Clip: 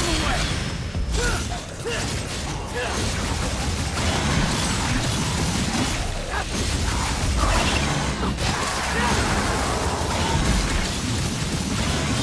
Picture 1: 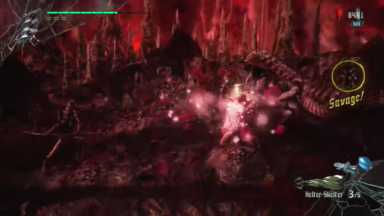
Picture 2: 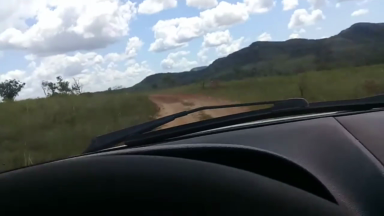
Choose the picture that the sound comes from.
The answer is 1